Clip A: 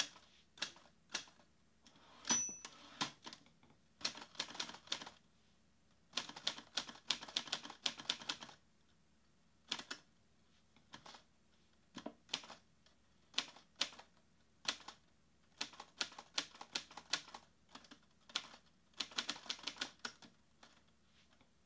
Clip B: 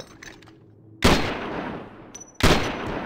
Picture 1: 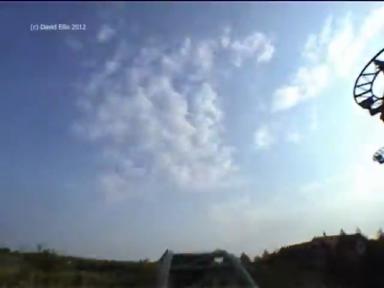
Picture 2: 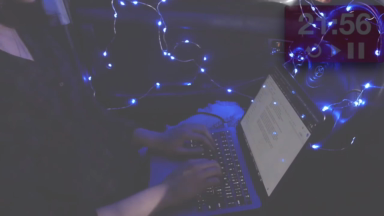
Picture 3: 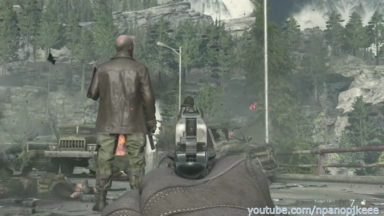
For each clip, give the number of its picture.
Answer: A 2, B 3